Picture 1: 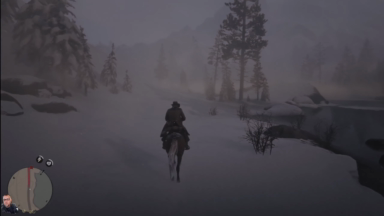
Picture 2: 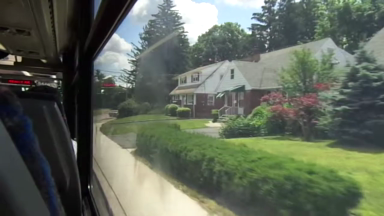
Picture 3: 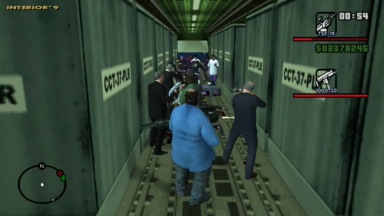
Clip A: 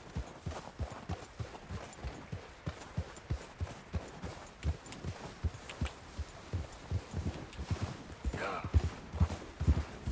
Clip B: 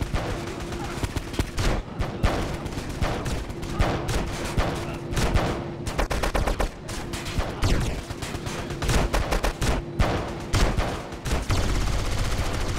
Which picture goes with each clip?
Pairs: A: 1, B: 3